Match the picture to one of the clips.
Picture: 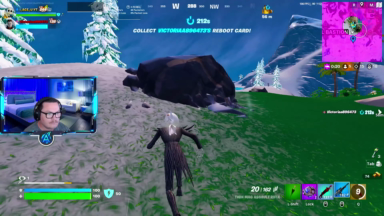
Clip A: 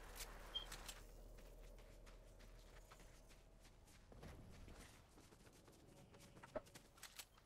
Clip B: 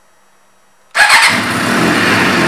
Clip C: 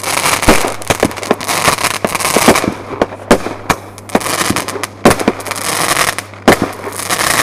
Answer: A